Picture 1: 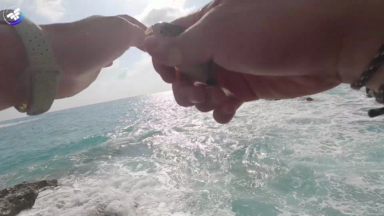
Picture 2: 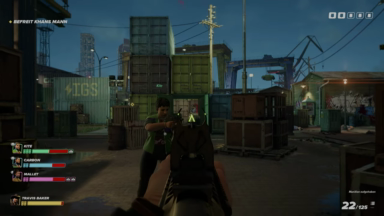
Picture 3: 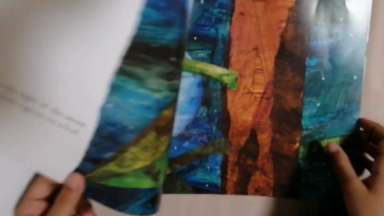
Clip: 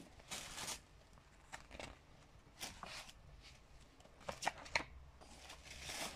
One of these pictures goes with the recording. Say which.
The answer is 3